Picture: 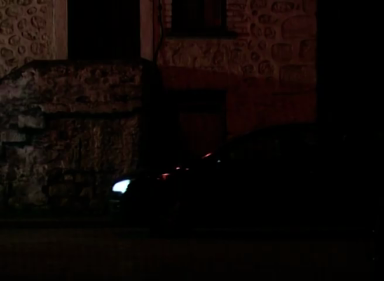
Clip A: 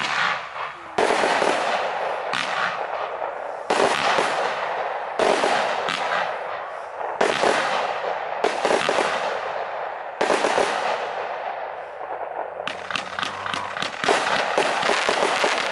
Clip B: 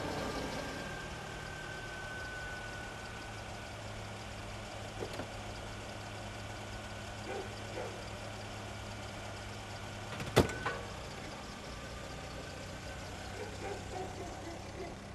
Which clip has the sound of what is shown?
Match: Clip B